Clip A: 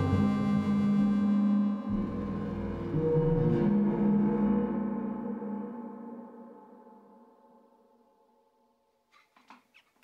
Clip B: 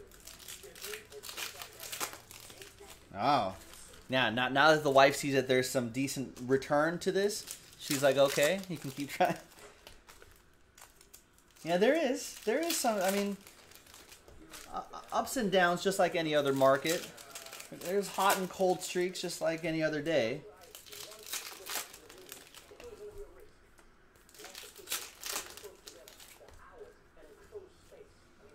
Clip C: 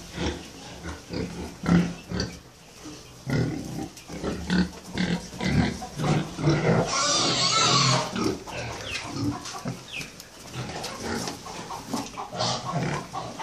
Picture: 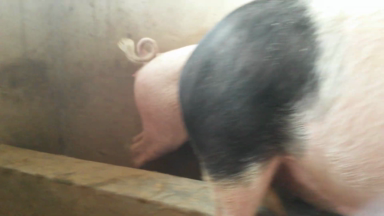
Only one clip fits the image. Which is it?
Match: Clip C